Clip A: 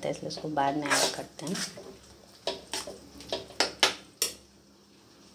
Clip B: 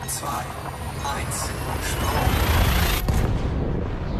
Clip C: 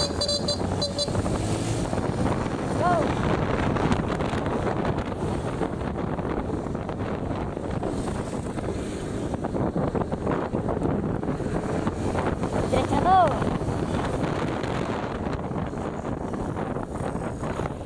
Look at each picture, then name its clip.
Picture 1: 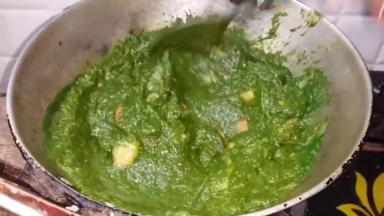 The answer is A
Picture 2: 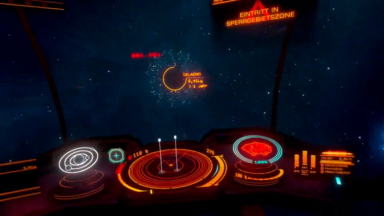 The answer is B